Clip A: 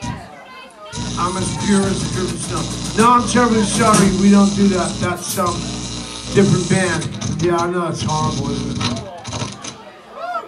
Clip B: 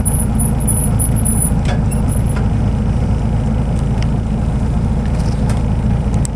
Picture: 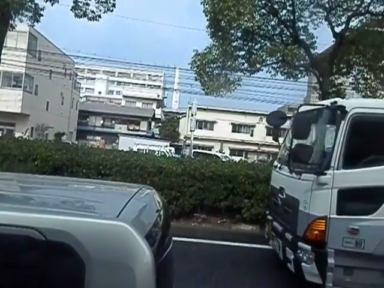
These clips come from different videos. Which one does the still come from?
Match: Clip B